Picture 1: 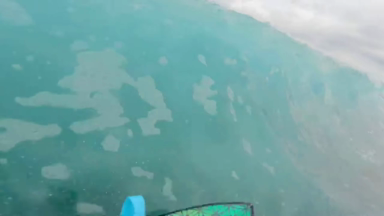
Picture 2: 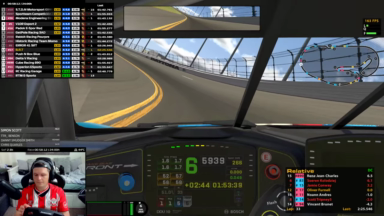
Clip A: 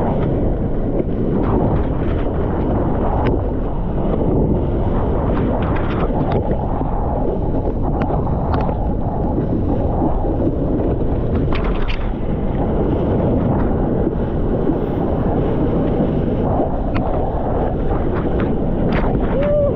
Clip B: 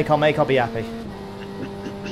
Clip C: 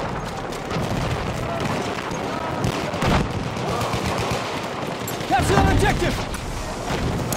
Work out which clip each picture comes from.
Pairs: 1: A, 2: B